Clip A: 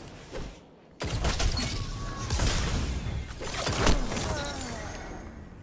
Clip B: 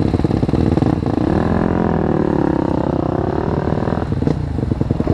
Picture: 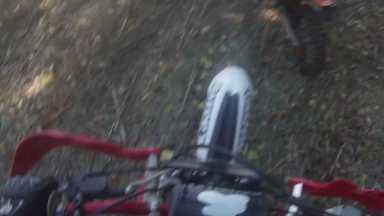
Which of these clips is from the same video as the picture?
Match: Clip B